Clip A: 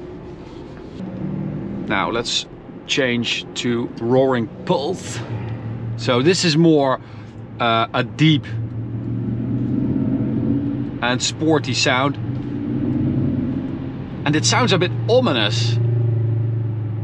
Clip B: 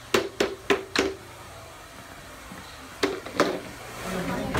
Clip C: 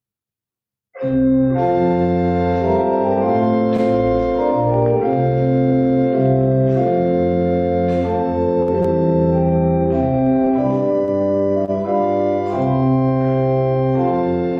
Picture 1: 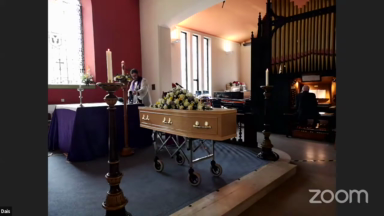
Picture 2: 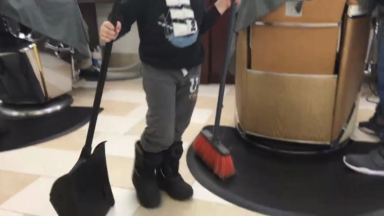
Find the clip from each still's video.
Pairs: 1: C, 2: B